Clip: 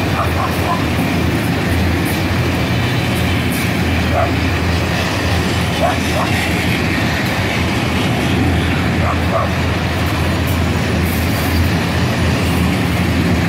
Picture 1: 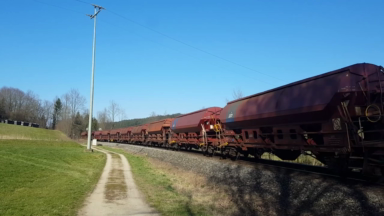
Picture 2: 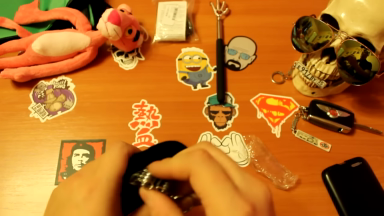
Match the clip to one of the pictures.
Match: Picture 1